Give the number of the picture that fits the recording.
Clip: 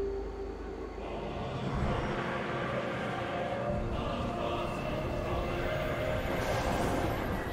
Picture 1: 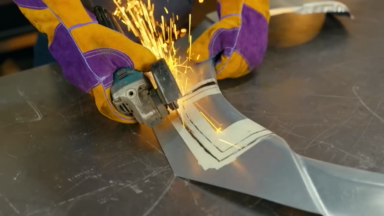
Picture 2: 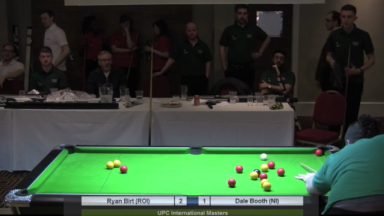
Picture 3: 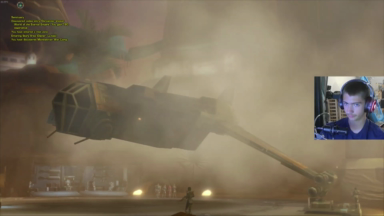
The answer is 3